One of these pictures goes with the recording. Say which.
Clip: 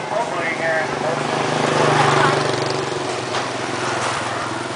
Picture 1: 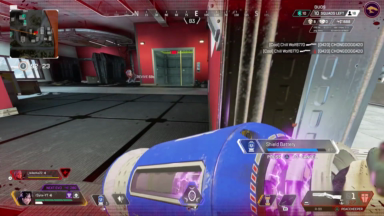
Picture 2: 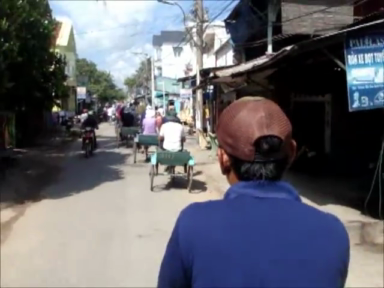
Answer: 2